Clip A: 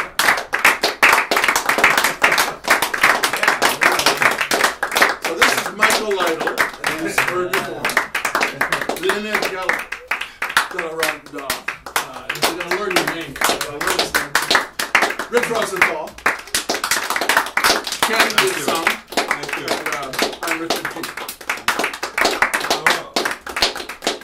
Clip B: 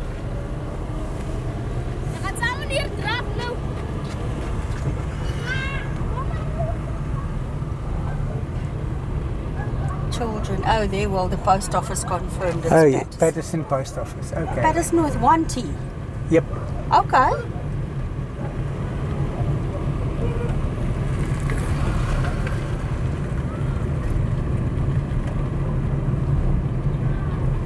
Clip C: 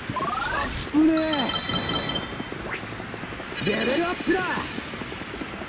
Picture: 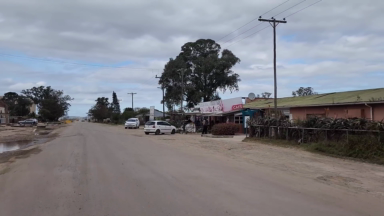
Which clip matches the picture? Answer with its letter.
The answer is B